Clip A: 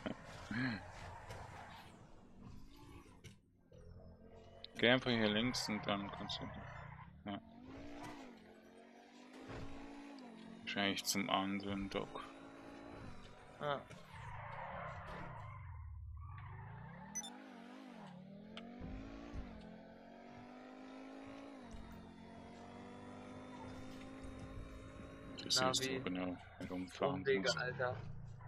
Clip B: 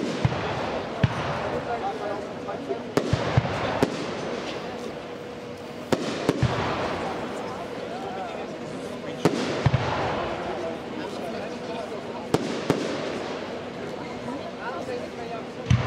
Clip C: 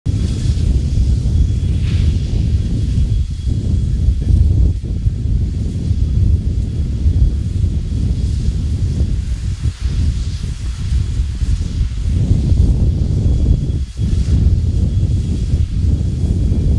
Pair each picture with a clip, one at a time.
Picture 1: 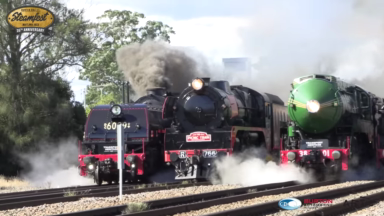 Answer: C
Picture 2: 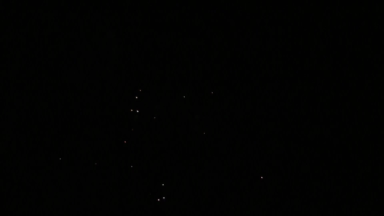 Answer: B